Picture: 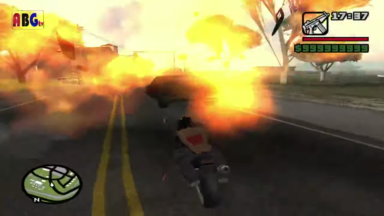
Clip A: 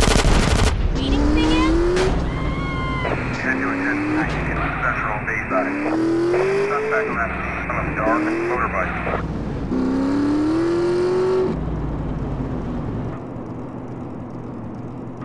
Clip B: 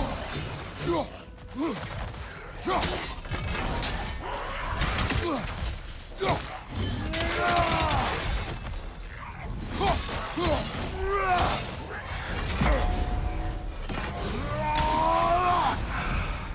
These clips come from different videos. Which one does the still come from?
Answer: A